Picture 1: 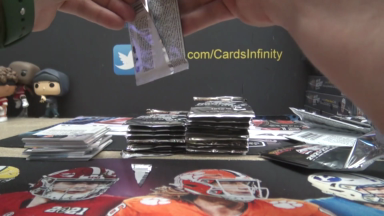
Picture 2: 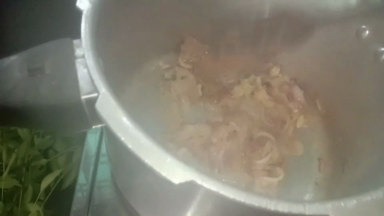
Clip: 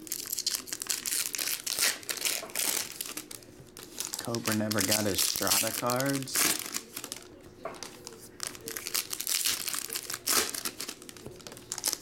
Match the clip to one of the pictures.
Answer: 1